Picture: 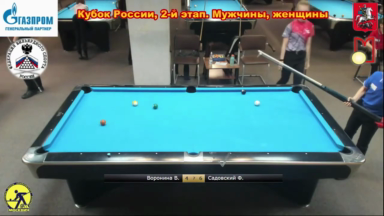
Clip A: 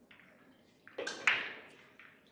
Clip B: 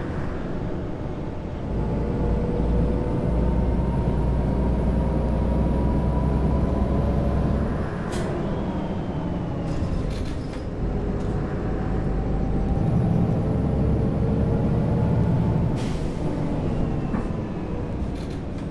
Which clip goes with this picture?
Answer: A